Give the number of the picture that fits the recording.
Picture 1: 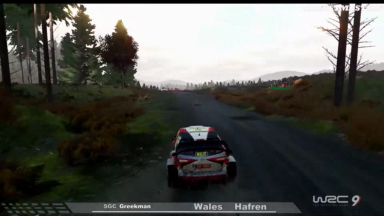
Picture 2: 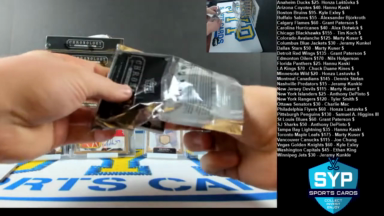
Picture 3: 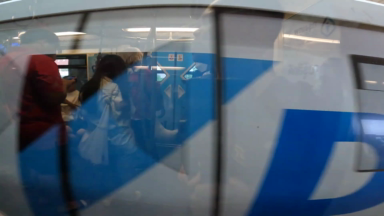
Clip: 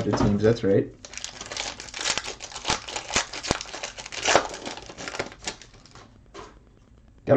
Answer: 2